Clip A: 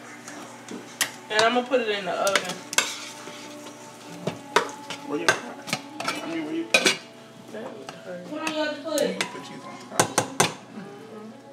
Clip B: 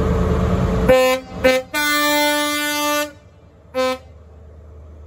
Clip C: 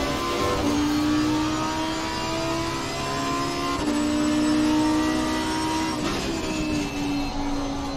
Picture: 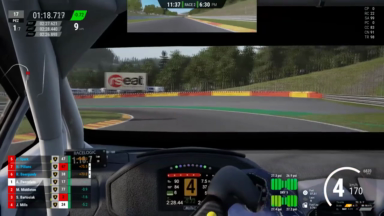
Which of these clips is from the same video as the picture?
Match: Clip C